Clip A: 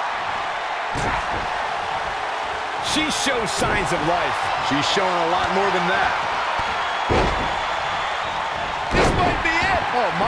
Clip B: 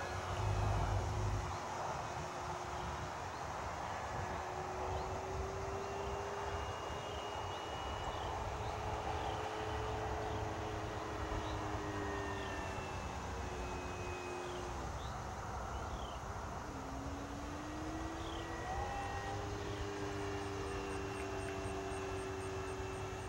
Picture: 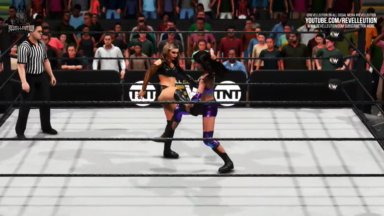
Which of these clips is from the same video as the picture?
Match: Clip A